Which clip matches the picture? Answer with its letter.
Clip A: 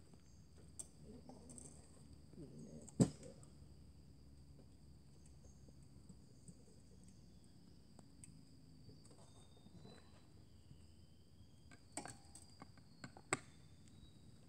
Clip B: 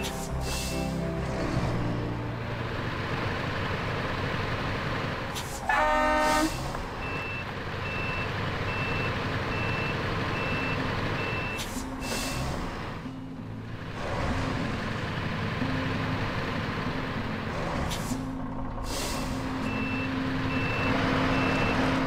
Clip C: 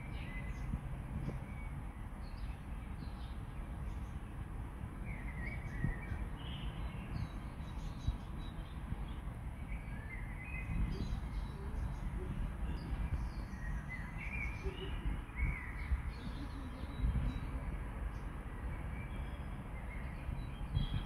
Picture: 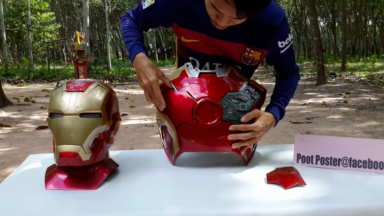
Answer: A